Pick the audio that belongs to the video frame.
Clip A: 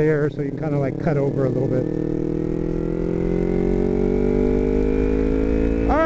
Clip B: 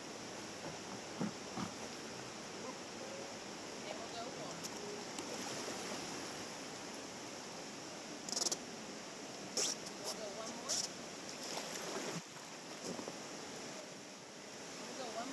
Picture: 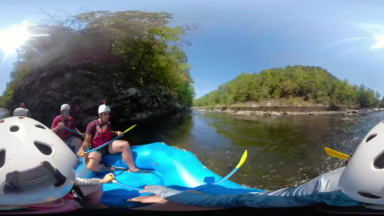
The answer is B